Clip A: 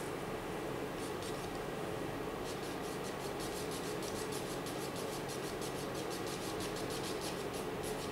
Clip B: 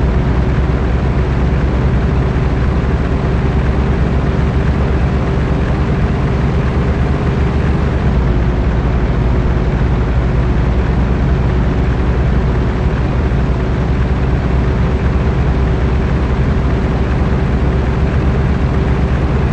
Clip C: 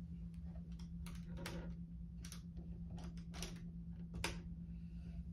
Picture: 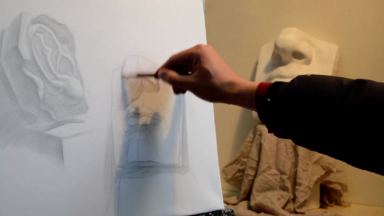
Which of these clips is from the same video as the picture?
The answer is A